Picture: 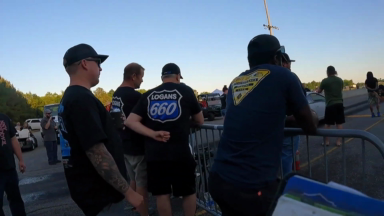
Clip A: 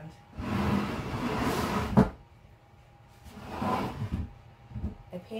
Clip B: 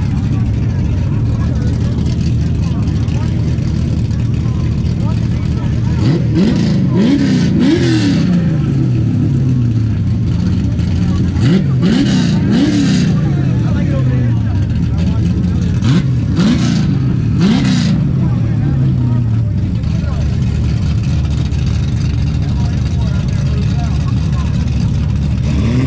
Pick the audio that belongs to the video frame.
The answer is B